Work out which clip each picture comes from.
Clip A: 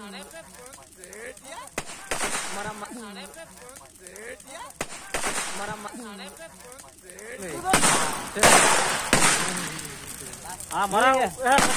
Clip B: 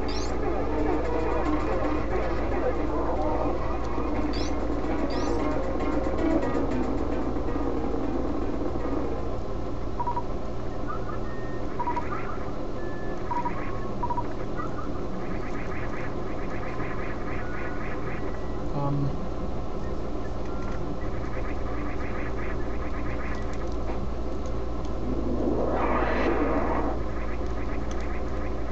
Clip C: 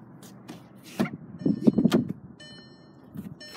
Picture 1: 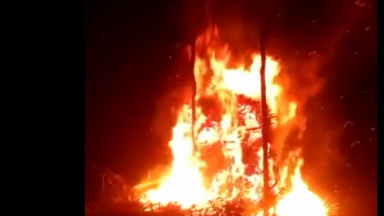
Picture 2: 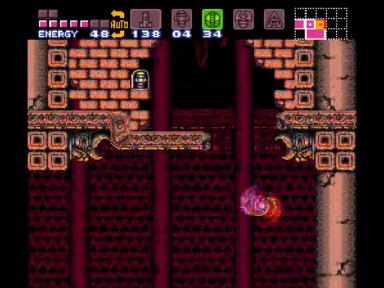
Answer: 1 A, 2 B